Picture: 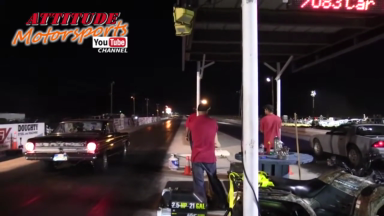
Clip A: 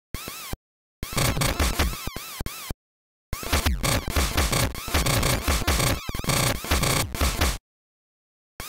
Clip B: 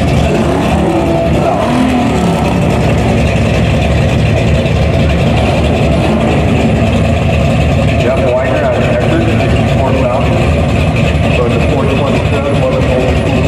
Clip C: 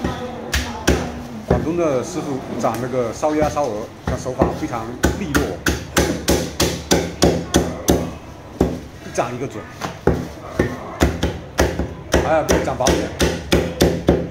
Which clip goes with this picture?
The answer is B